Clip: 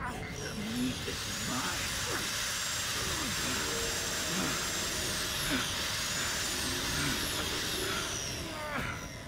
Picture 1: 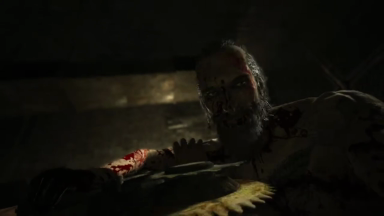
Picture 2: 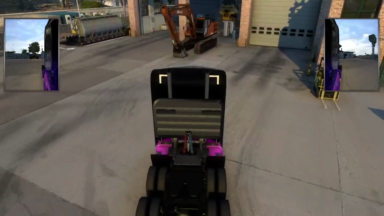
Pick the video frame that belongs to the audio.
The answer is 1